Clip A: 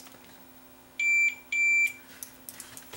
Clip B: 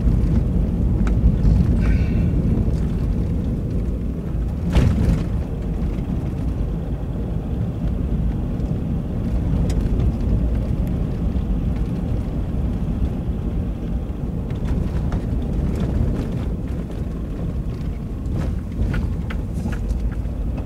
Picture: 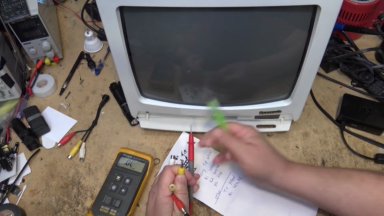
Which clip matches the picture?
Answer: A